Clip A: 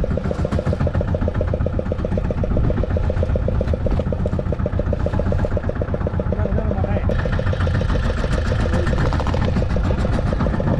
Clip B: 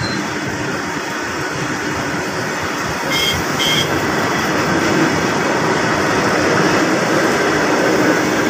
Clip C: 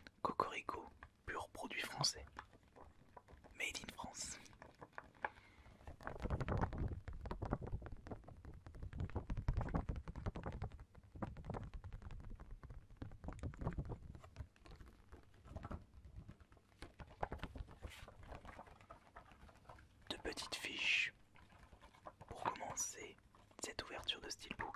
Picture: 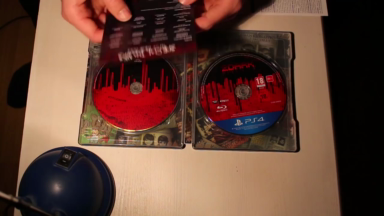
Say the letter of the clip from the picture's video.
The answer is C